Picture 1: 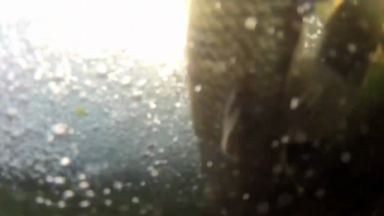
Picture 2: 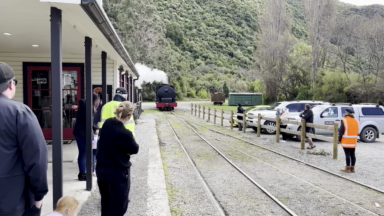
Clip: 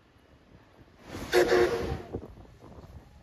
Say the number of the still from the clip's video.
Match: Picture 2